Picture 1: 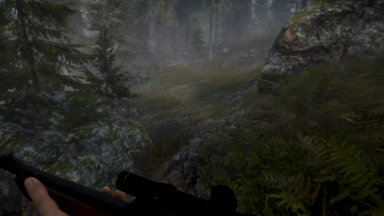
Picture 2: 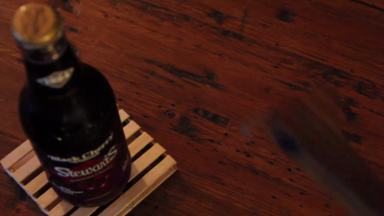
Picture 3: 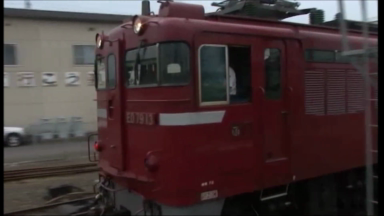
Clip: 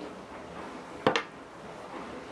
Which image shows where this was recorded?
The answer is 2